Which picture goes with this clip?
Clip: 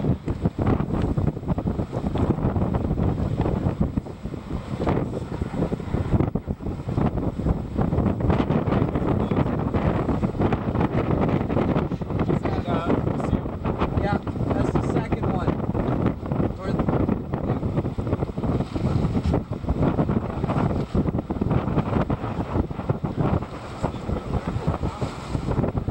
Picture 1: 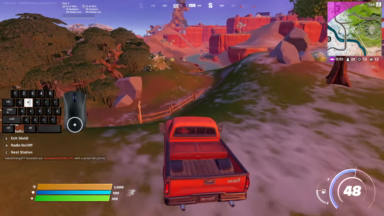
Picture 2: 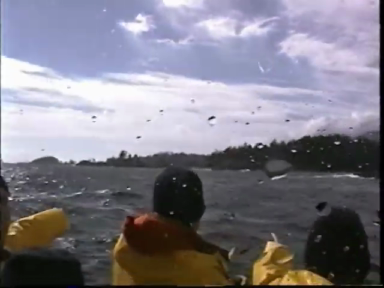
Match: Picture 2